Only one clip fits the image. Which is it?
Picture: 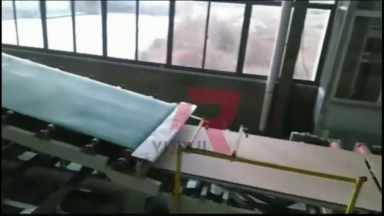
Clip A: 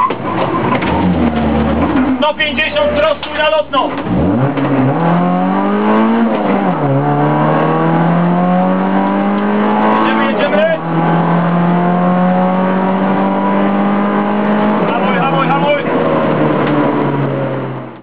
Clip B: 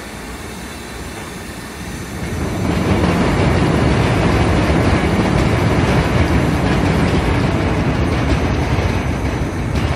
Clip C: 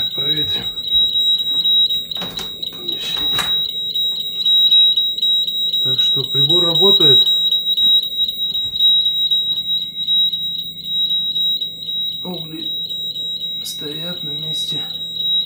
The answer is B